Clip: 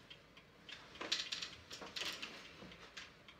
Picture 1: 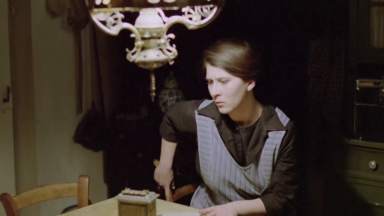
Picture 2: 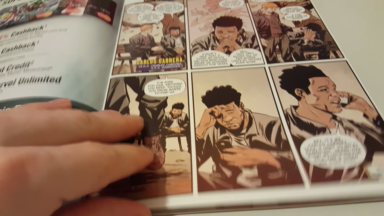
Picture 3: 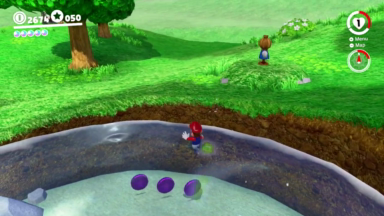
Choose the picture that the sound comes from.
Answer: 1